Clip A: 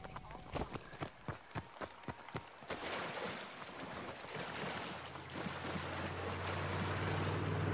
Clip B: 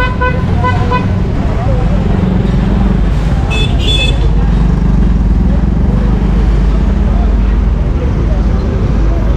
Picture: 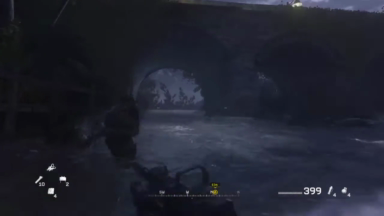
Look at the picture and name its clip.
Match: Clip A